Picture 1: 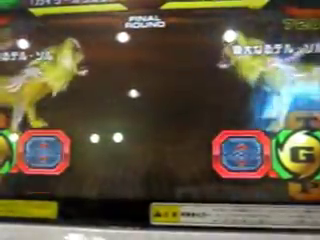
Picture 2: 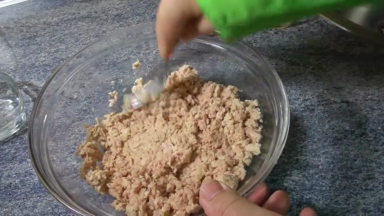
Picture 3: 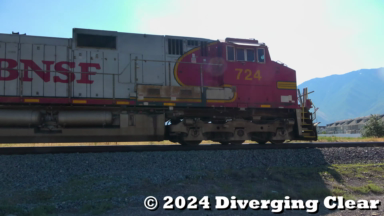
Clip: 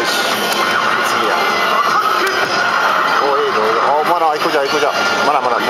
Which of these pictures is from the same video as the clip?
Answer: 1